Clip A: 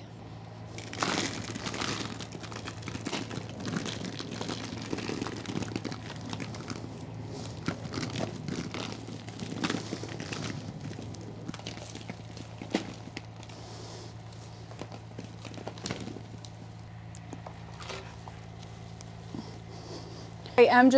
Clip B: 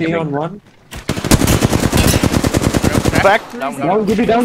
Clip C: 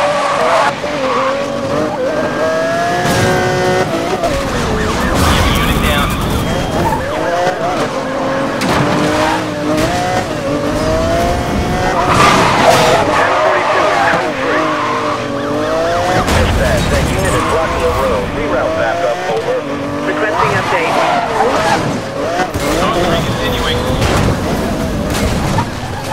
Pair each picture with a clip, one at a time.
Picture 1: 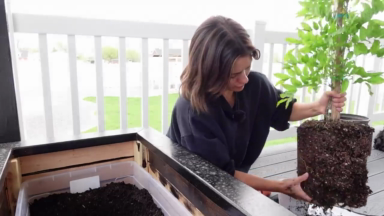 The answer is A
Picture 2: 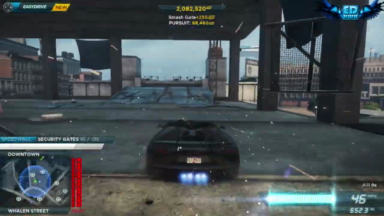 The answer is C